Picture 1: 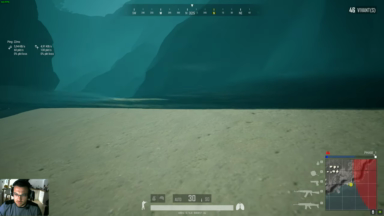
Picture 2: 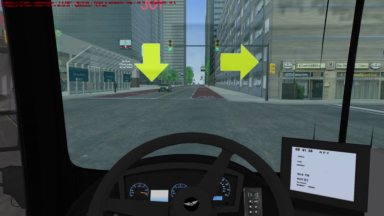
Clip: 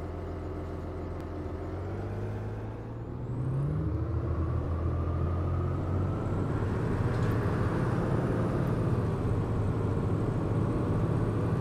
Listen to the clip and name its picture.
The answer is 2